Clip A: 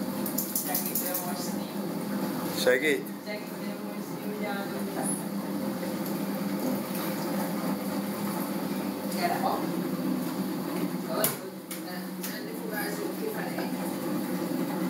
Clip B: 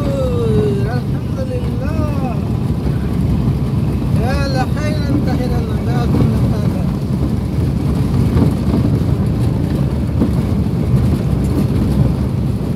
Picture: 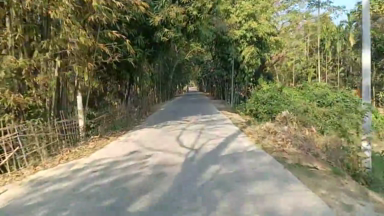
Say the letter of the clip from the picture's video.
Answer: B